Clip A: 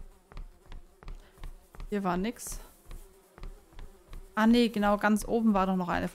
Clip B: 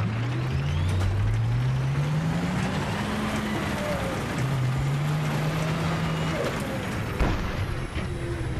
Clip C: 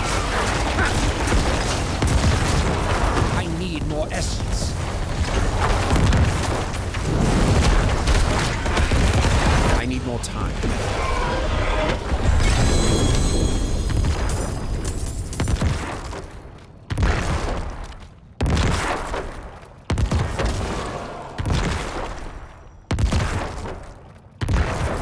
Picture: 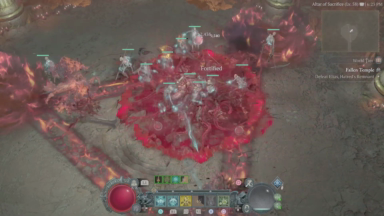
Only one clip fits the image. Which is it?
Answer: C